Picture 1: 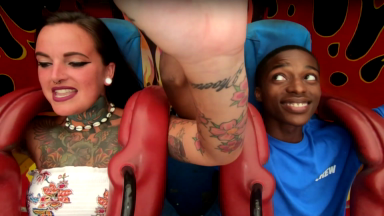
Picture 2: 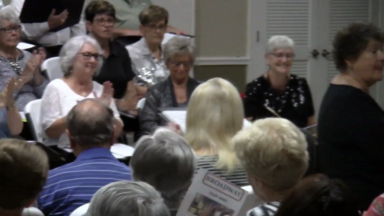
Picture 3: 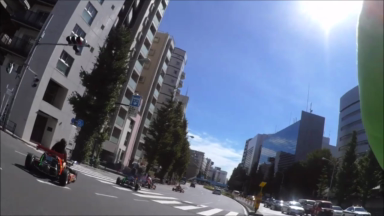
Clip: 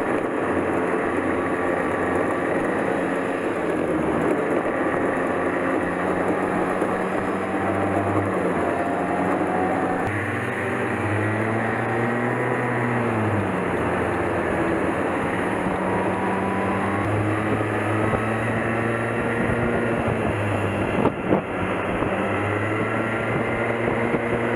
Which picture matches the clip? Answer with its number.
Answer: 3